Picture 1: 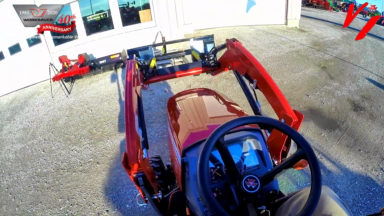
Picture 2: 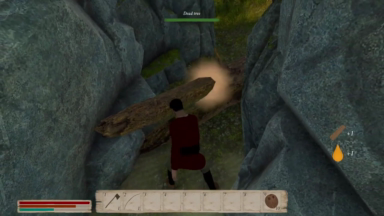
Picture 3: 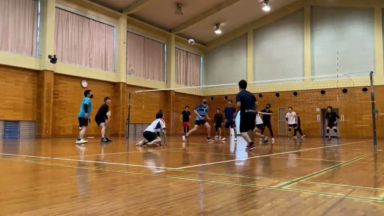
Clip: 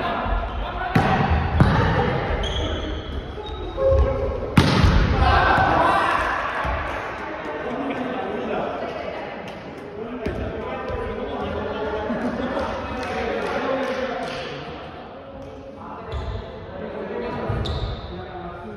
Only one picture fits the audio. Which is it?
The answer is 3